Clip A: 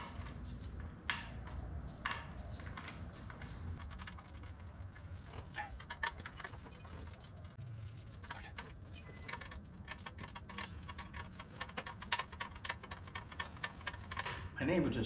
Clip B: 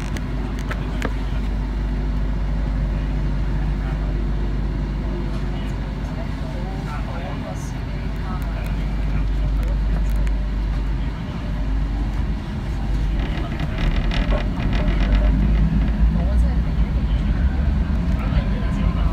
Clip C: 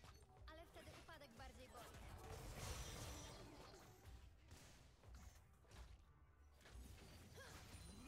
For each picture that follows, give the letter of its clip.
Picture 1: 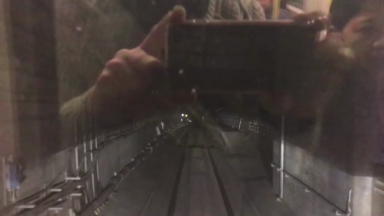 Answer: B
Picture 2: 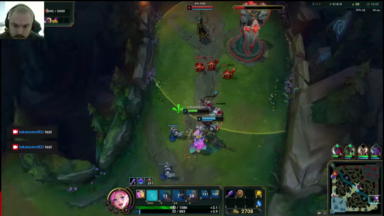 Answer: C